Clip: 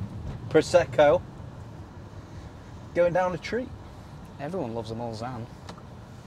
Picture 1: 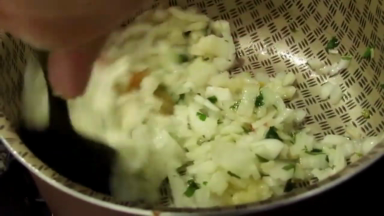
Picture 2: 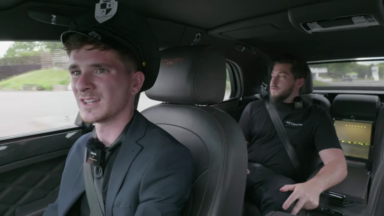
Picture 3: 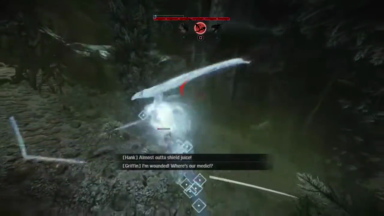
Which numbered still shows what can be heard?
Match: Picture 2